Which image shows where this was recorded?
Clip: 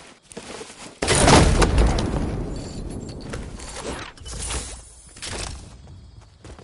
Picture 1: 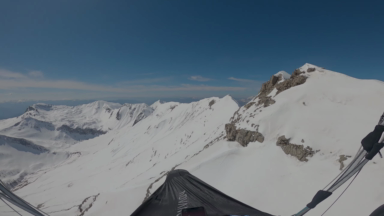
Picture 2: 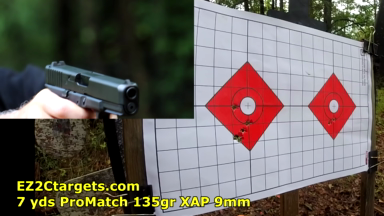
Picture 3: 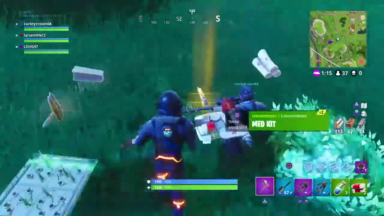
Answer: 3